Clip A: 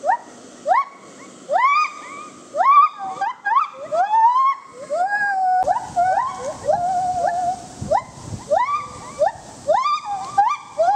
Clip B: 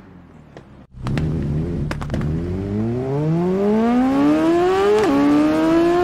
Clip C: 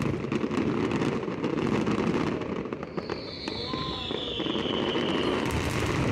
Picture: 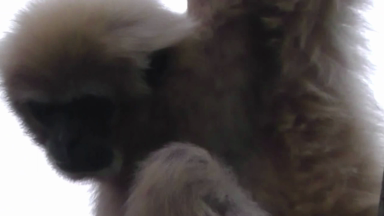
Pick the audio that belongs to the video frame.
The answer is A